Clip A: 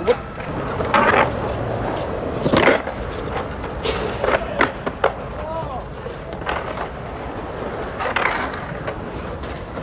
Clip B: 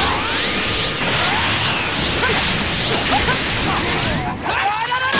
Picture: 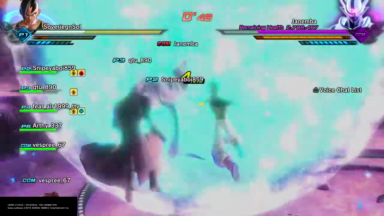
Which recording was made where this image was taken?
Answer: B